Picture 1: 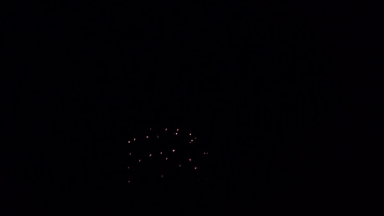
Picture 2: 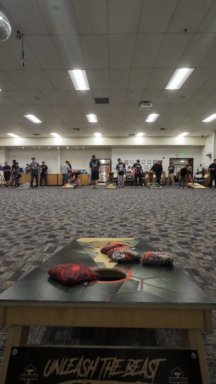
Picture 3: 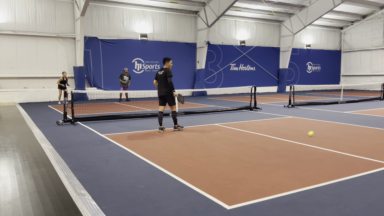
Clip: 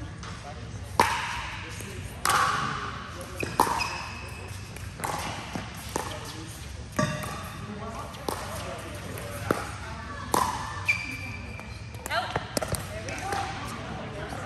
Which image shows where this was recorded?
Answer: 3